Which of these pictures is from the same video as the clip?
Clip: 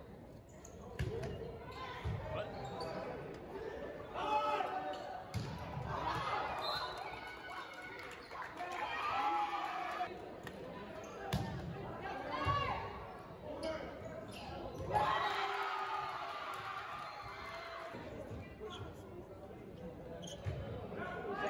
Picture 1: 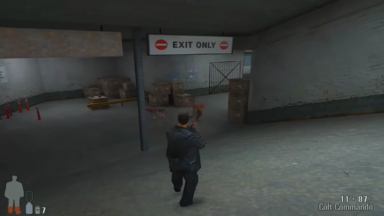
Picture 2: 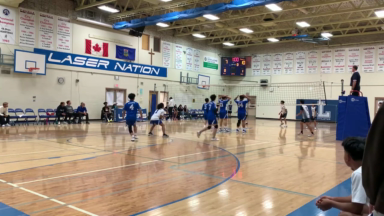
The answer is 2